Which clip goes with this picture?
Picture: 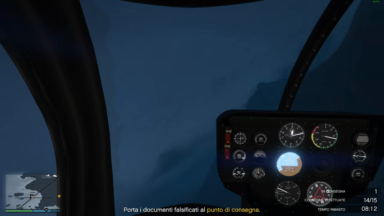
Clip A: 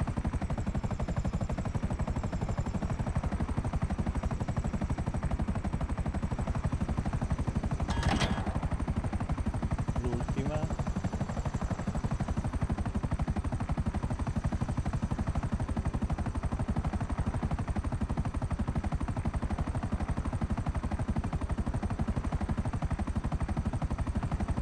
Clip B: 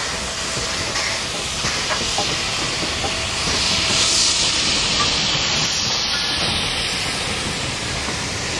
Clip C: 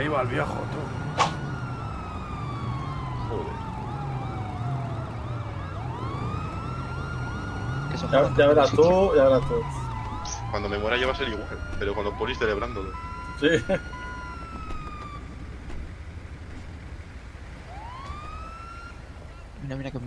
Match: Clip A